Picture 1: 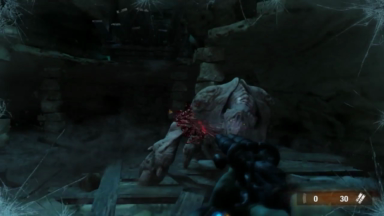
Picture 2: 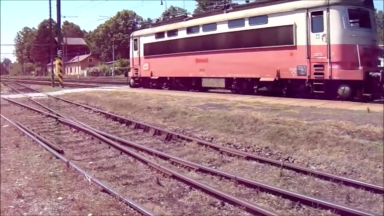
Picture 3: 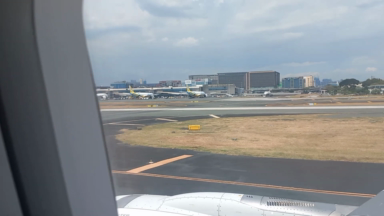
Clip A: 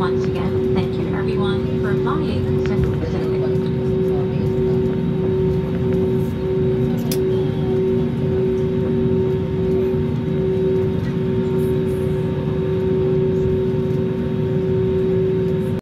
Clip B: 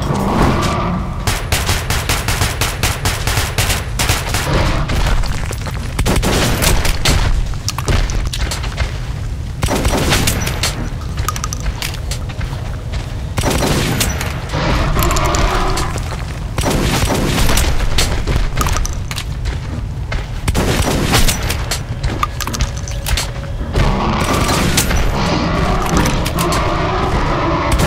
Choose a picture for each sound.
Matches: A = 3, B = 1